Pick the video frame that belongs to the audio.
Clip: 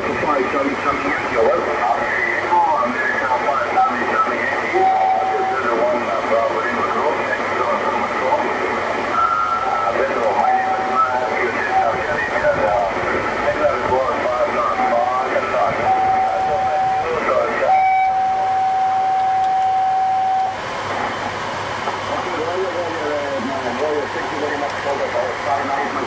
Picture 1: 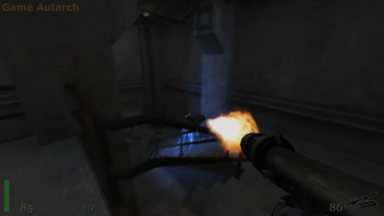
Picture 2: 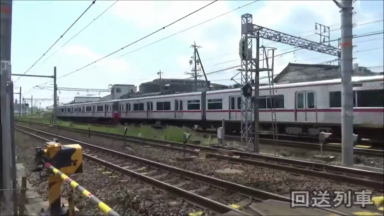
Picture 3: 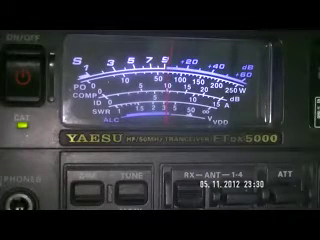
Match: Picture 3